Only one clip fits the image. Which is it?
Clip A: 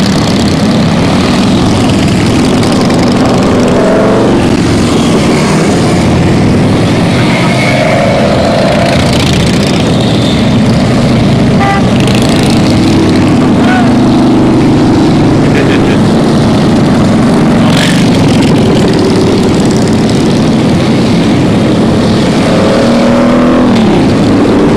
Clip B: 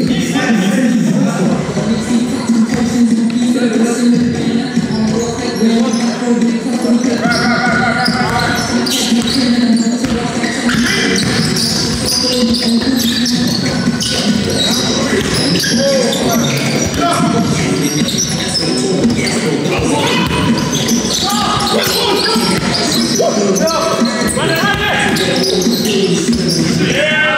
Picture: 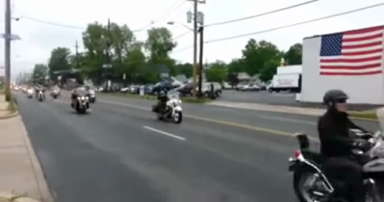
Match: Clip A